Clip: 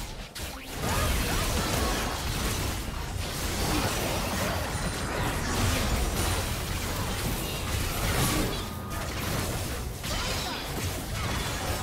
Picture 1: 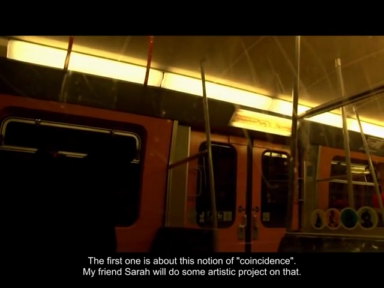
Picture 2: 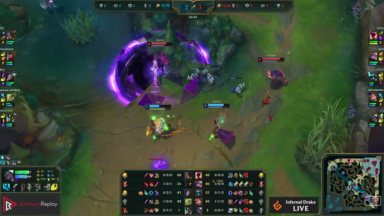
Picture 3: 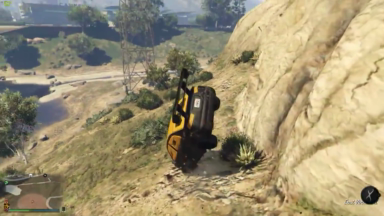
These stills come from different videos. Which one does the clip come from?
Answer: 2